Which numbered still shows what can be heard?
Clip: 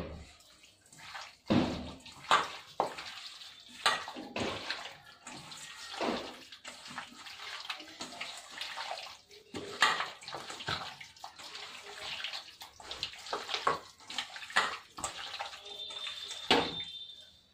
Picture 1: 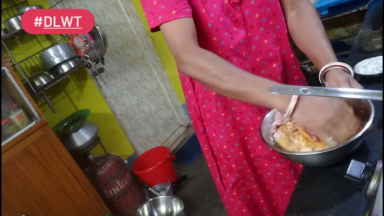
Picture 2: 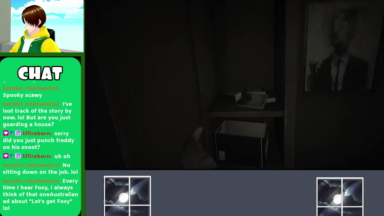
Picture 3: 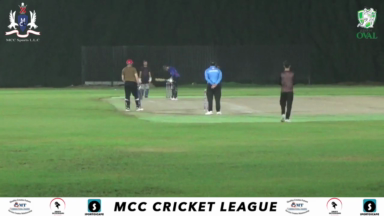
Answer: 1